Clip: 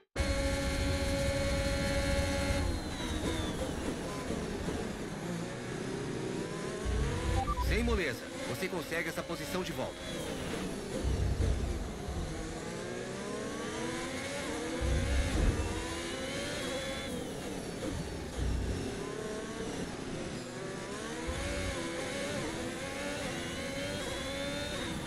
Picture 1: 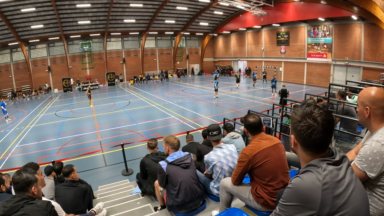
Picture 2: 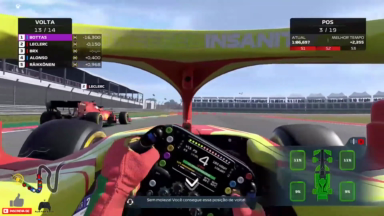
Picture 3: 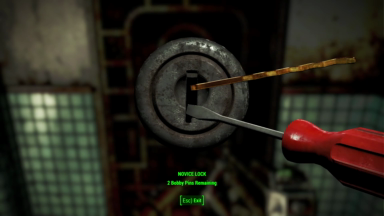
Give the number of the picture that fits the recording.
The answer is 2